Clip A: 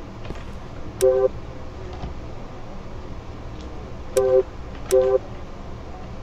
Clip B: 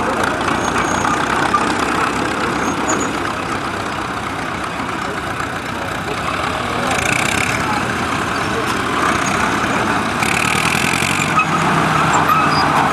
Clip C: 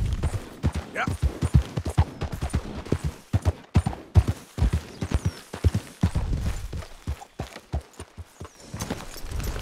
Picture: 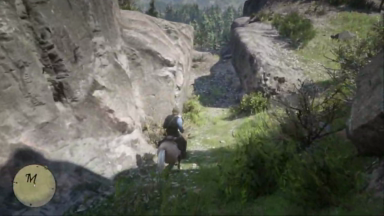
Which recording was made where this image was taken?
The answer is C